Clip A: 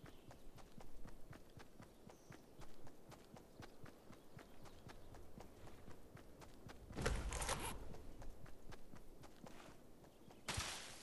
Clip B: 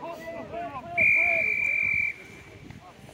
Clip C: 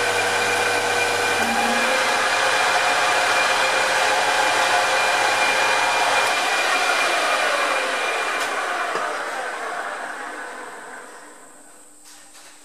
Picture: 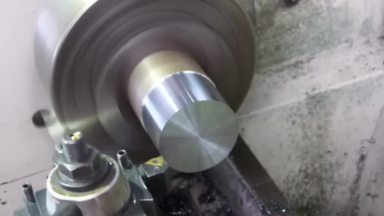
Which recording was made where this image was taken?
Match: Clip C